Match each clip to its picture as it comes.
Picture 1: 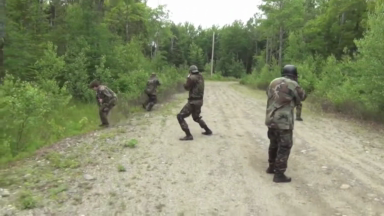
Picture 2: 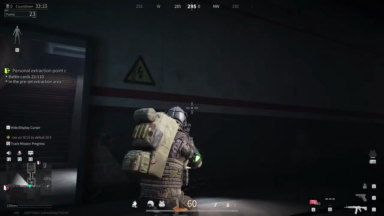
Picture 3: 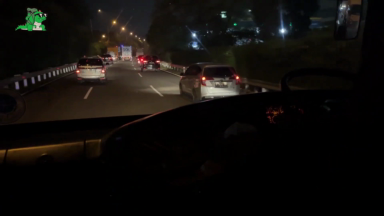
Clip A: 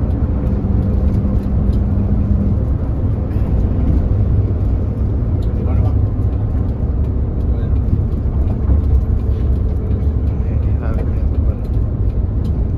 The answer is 3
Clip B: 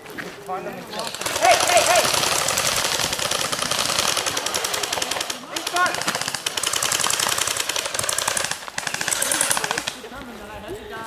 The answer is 1